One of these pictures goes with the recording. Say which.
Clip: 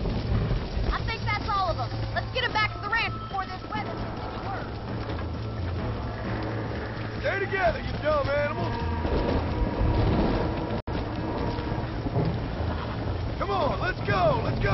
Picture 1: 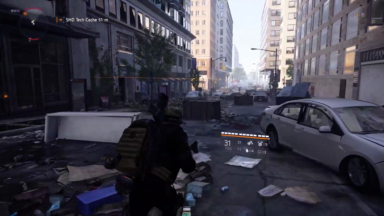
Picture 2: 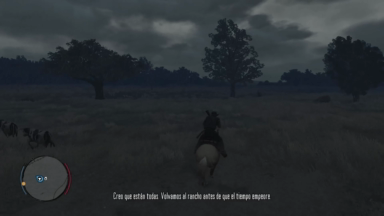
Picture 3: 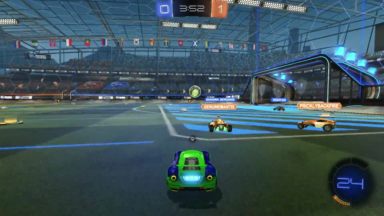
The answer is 2